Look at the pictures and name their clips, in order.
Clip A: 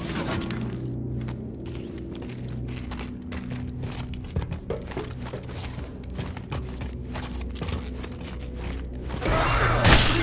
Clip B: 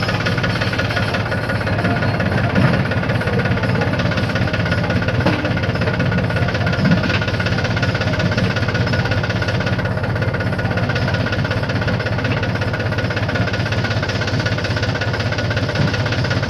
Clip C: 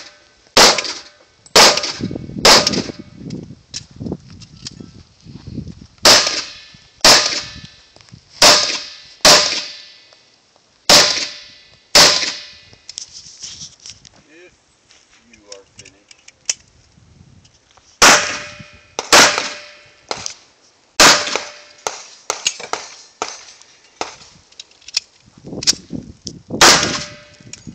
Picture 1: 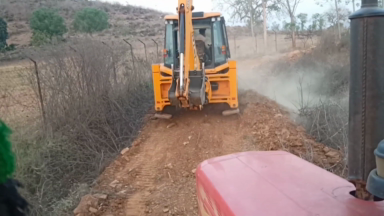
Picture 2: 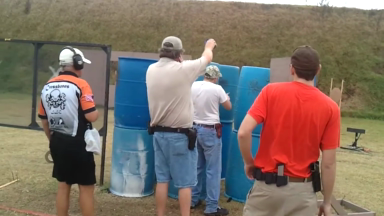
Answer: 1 B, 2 C